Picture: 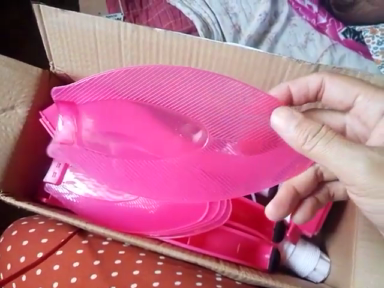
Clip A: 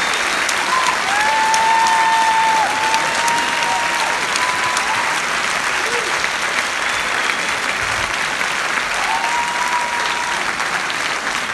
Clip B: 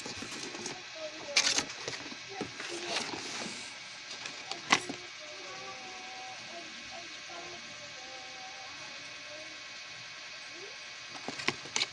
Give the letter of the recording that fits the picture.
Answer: B